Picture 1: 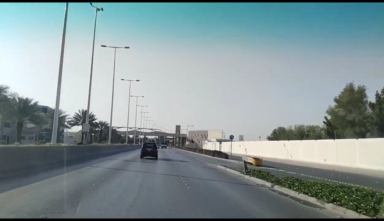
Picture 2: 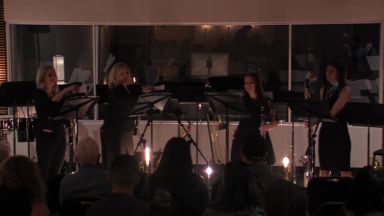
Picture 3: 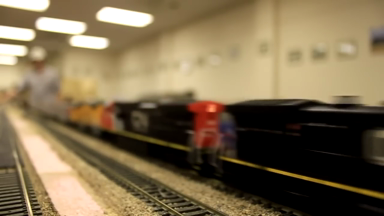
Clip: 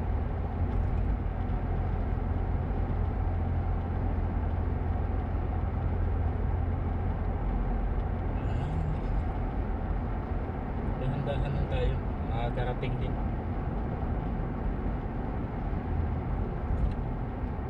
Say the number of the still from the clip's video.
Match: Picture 1